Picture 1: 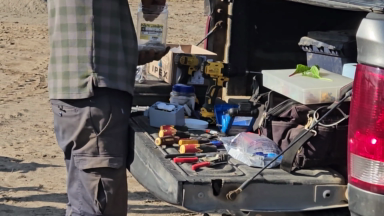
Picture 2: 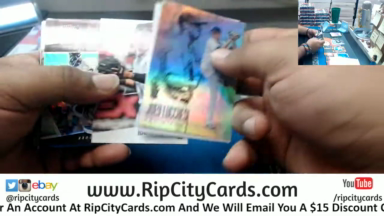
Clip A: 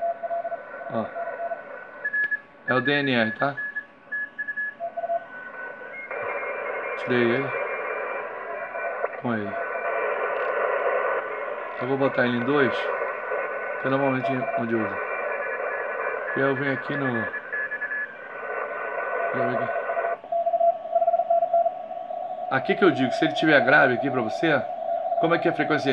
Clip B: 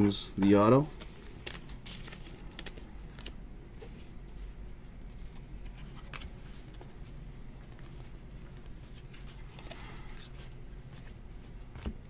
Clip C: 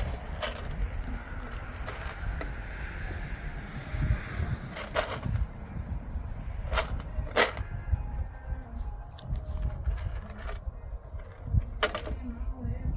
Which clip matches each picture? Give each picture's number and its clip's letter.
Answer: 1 C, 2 B